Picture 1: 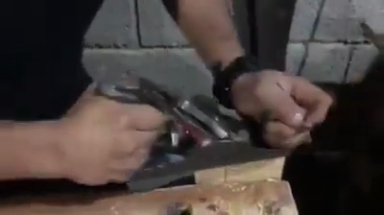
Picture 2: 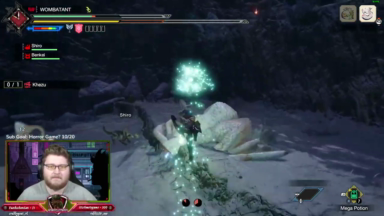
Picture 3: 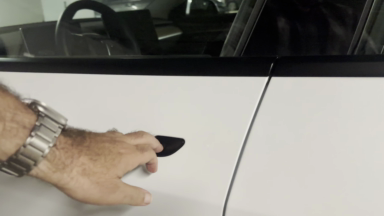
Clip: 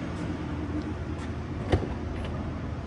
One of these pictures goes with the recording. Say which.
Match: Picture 3